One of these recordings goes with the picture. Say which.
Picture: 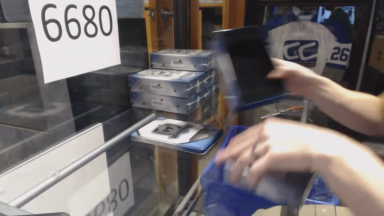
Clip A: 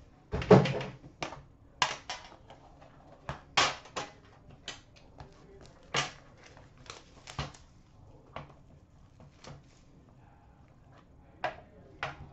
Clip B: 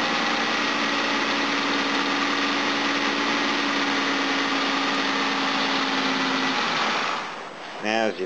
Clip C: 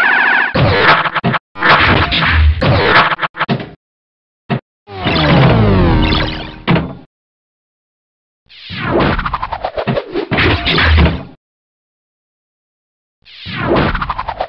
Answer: A